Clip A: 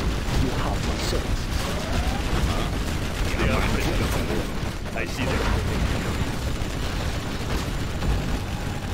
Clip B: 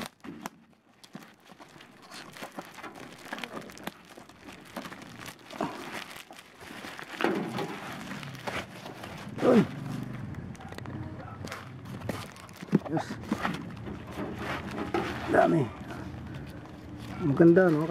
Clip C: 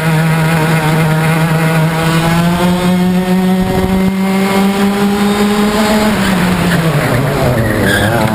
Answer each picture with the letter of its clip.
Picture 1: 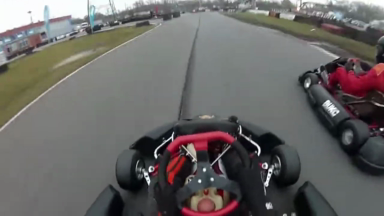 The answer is C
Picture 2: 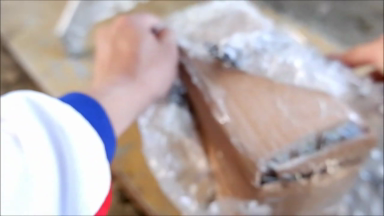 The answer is B